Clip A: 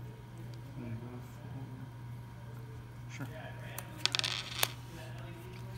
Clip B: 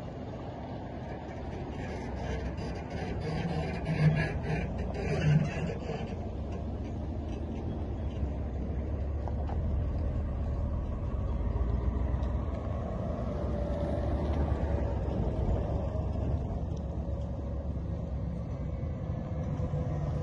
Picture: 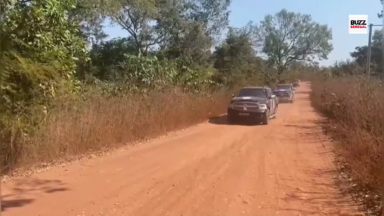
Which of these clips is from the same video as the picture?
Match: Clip B